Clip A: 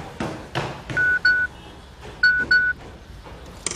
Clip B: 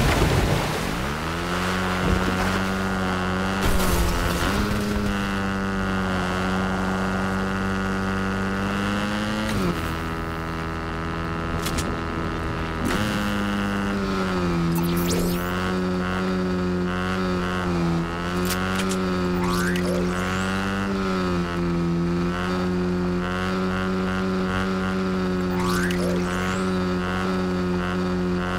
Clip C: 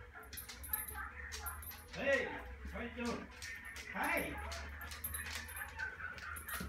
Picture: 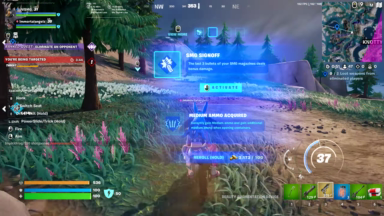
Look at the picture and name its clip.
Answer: B